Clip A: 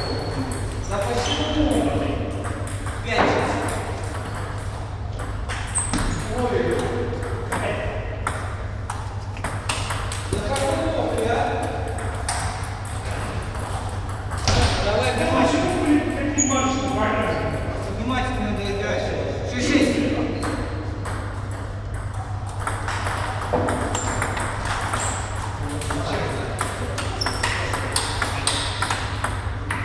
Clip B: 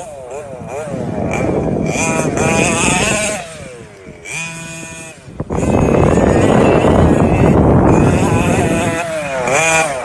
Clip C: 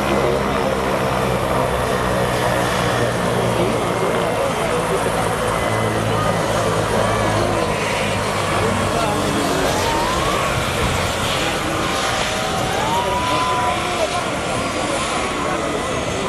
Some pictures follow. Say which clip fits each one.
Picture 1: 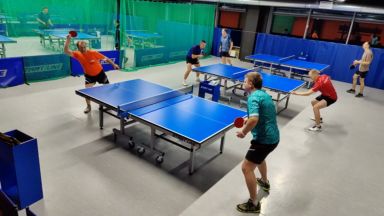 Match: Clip A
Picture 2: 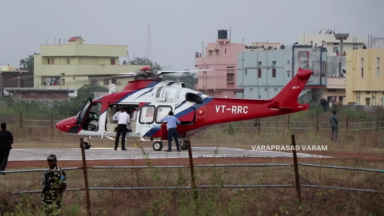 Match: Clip C